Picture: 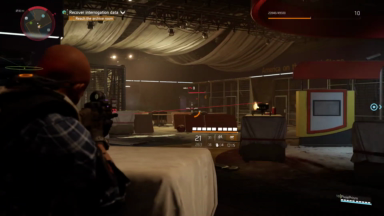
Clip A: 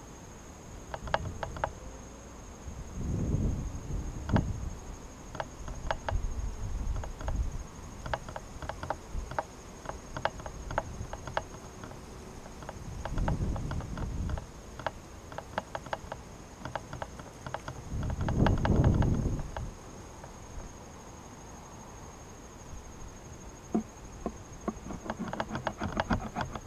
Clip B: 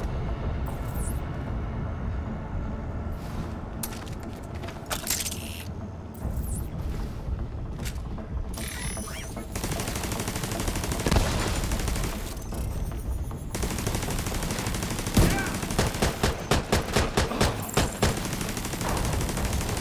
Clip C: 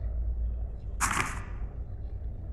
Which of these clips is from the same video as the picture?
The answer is B